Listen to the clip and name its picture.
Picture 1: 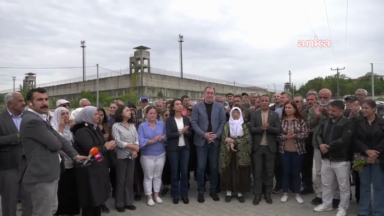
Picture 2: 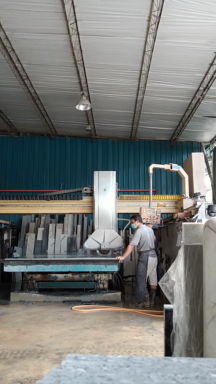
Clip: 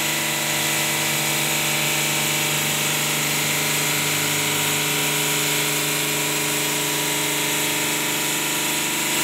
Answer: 2